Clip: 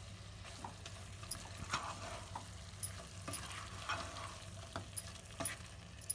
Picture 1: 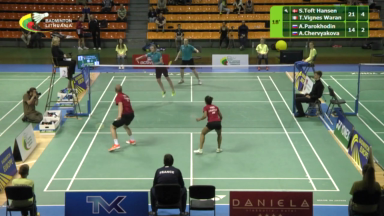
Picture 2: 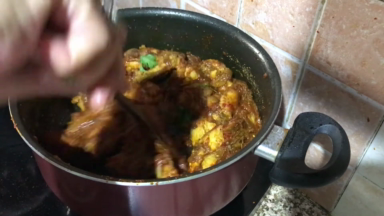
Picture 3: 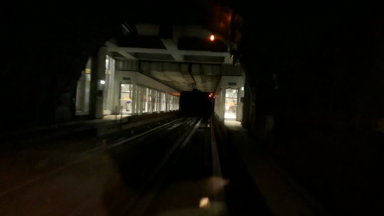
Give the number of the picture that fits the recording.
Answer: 2